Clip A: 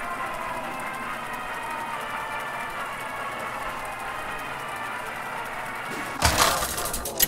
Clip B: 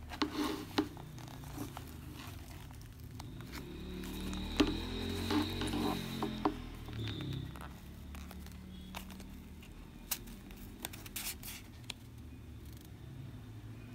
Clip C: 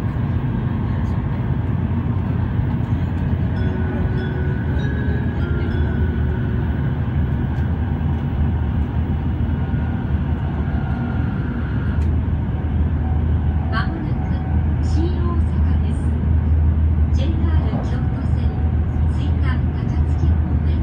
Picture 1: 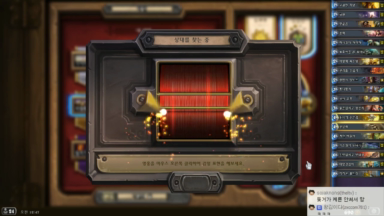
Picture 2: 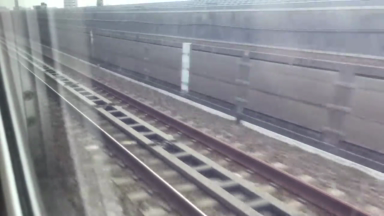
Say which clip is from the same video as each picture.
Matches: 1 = A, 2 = C